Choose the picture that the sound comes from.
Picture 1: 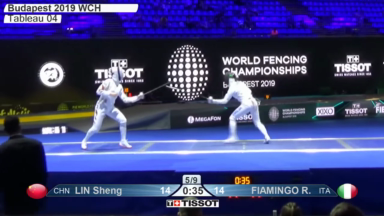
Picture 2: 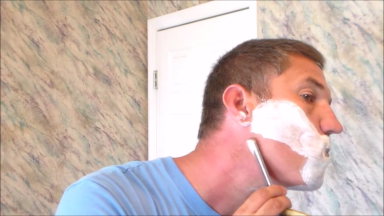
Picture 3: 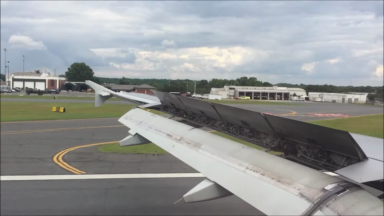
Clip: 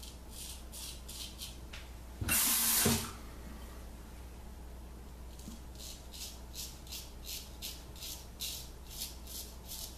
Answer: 2